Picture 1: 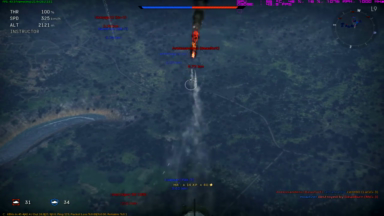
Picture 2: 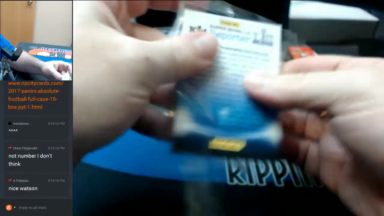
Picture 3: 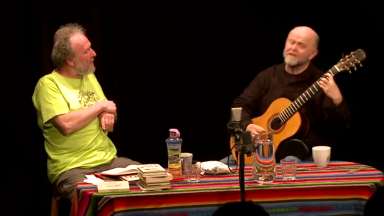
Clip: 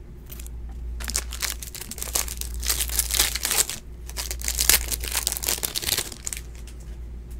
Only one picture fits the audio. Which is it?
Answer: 2